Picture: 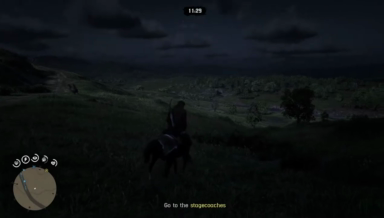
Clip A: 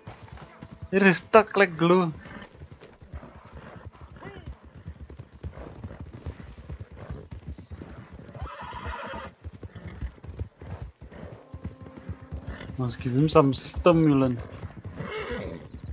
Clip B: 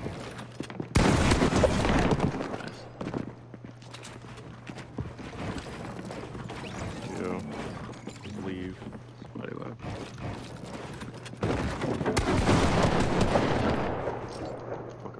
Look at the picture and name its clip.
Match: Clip A